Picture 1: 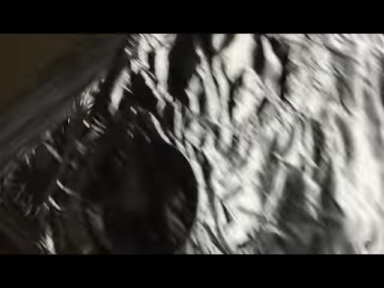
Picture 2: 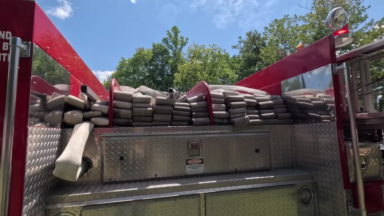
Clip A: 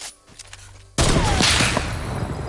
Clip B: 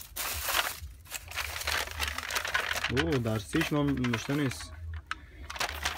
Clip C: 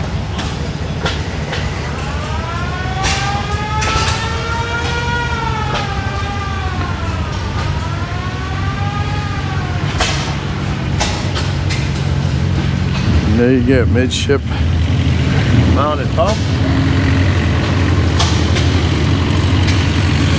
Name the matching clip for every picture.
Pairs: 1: B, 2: C